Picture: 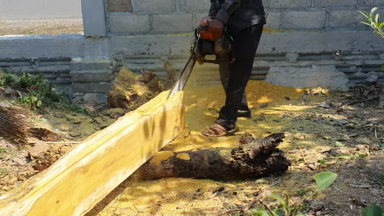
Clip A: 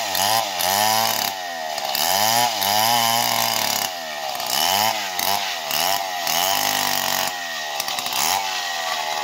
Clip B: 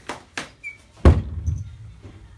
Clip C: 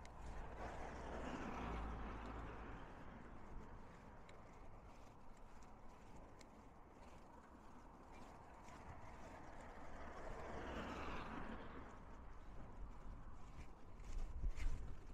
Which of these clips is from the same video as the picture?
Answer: A